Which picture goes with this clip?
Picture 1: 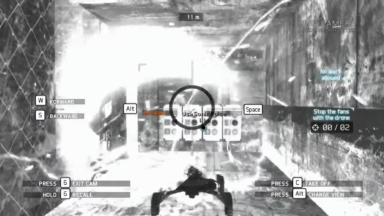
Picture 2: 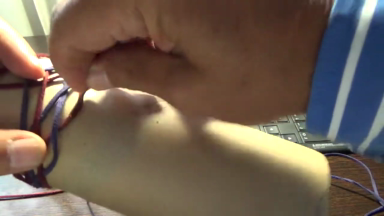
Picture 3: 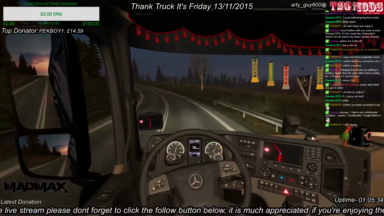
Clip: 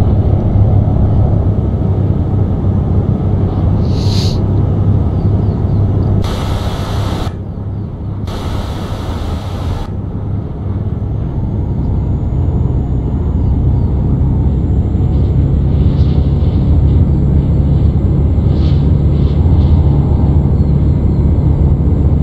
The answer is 3